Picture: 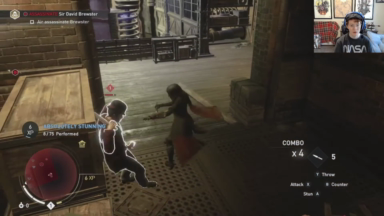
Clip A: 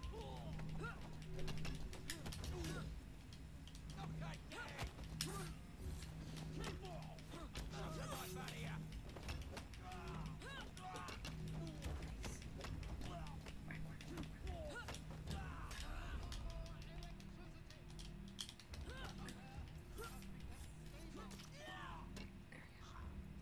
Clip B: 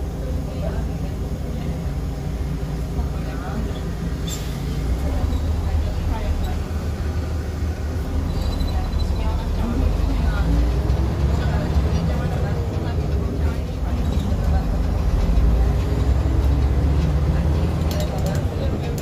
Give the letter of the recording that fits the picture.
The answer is A